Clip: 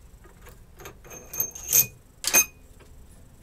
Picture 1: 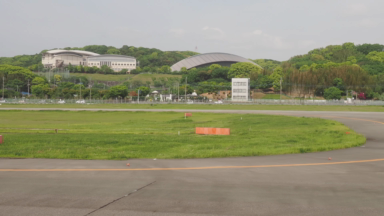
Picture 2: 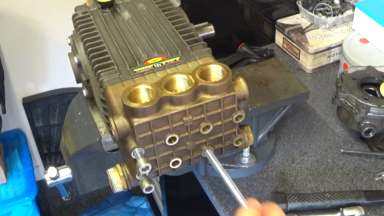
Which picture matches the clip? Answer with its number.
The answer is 2